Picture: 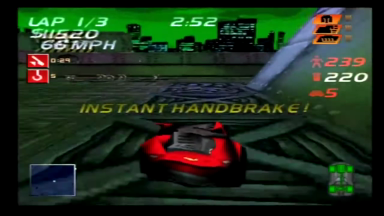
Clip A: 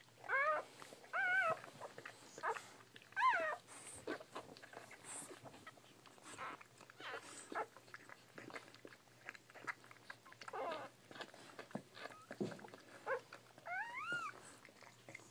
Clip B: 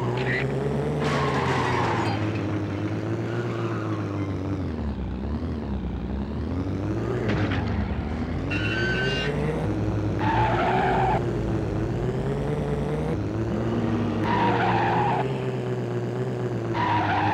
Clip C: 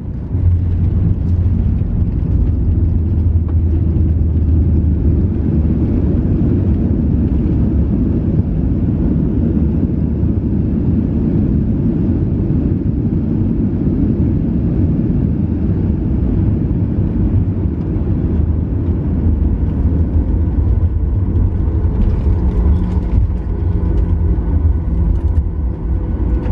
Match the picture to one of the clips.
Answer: B